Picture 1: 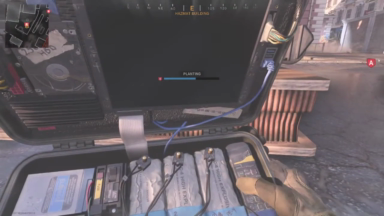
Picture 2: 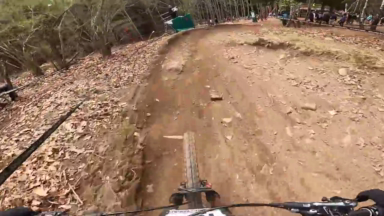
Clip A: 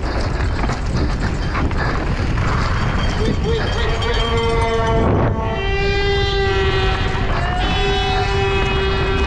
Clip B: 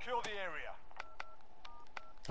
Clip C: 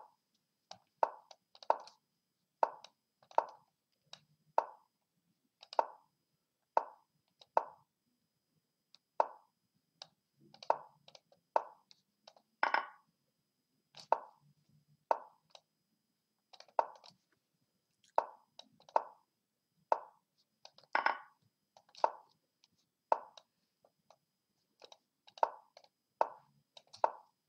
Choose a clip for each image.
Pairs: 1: B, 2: A